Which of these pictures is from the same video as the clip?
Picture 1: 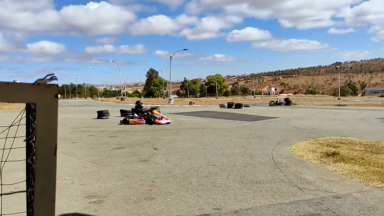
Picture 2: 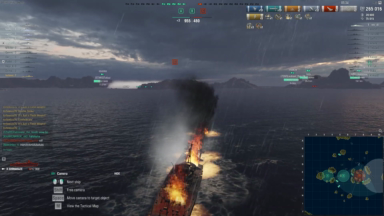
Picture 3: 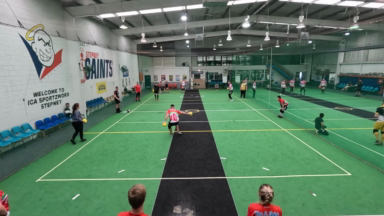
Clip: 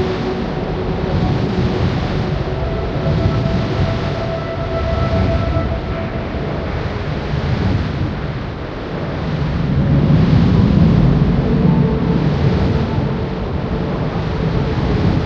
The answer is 2